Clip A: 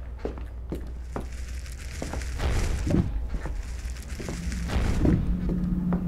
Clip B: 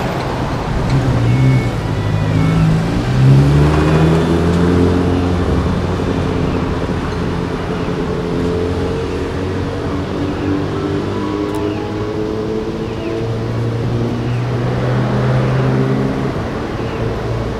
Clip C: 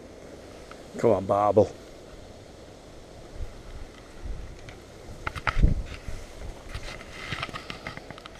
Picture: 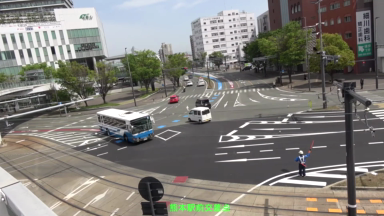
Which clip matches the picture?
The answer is B